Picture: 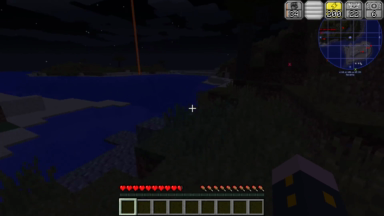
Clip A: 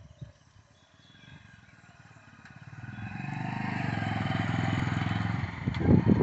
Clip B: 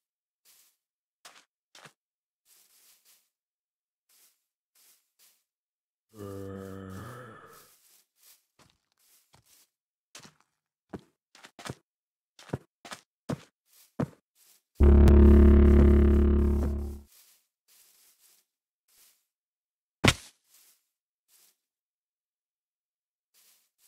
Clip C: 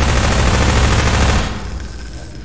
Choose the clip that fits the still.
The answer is B